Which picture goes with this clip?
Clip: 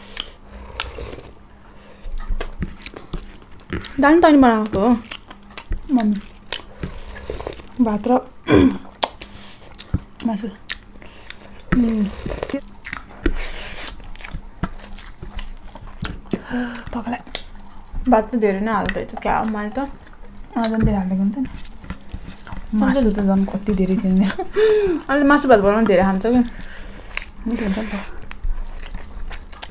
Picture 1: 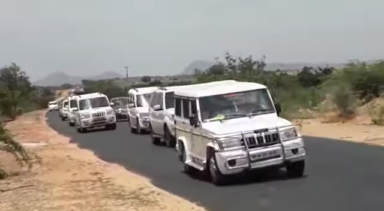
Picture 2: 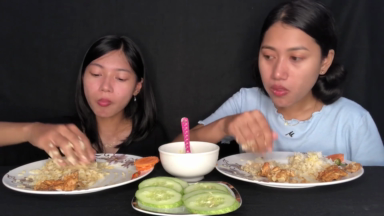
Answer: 2